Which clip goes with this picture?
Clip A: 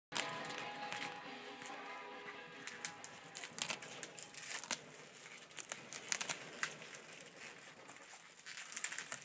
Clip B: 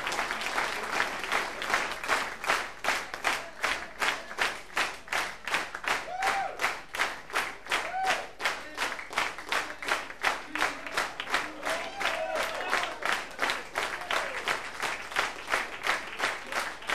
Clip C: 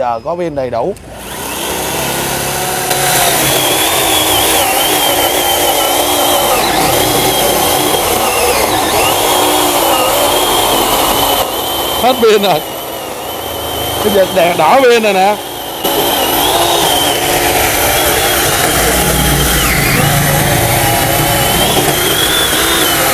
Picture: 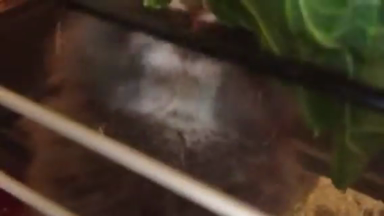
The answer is A